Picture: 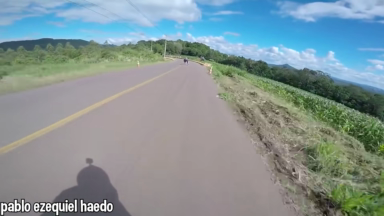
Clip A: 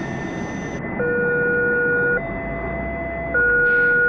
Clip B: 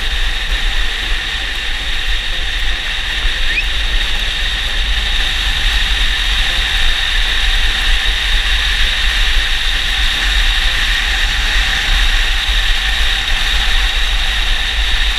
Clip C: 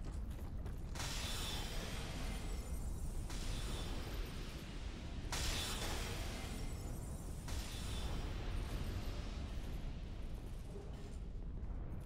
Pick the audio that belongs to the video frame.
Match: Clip B